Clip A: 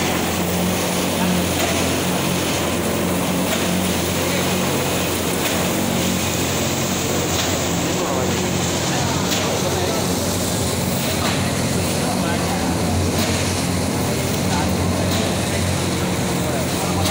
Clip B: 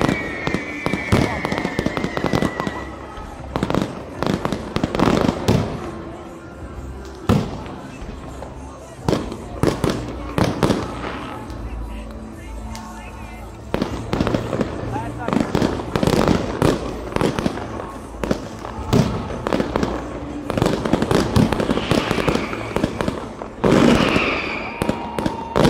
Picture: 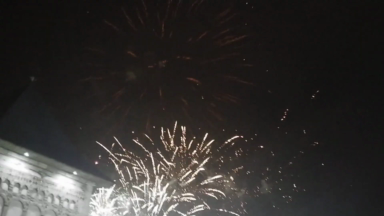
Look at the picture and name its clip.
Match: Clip B